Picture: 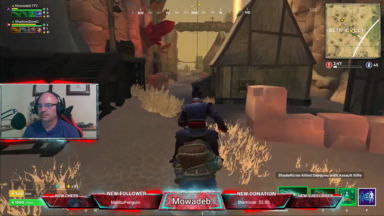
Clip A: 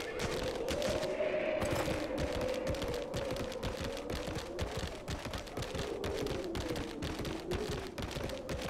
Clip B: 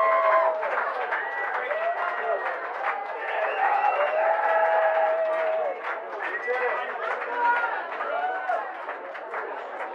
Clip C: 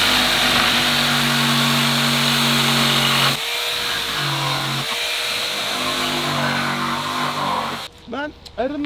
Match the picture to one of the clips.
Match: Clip A